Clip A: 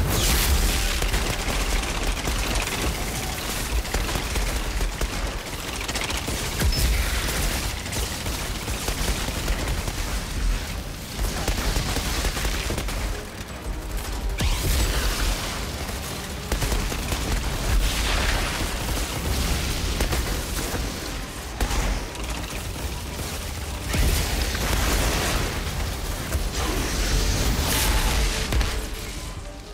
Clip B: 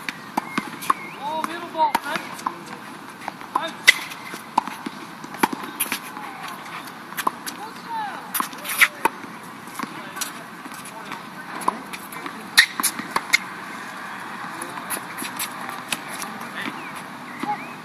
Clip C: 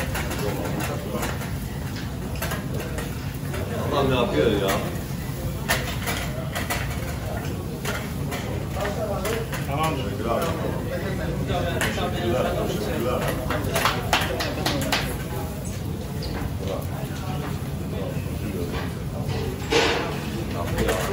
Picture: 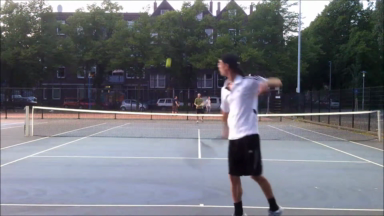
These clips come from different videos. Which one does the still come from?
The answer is B